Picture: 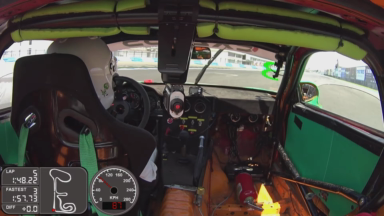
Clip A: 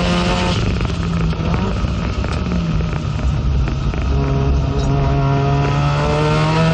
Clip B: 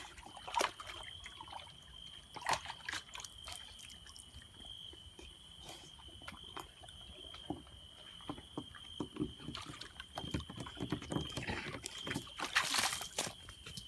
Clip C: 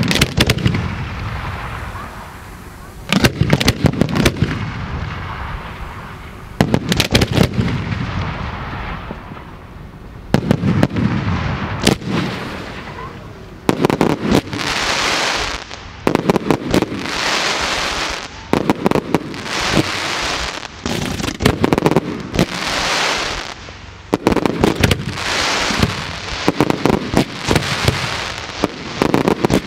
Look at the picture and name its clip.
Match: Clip A